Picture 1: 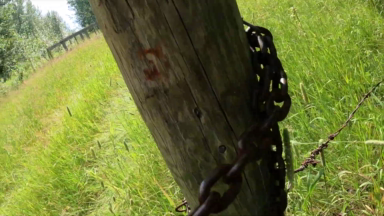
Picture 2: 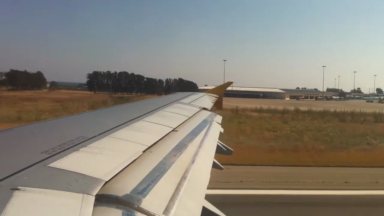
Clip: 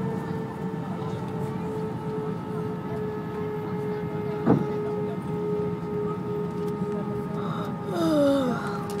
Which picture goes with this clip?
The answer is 2